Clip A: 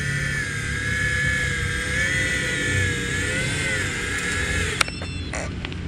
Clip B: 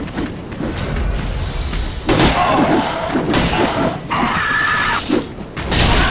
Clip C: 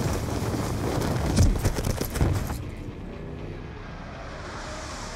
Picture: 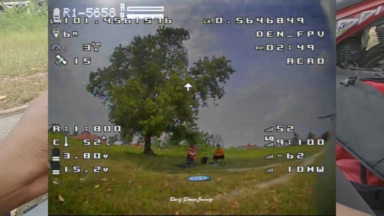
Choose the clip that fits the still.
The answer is A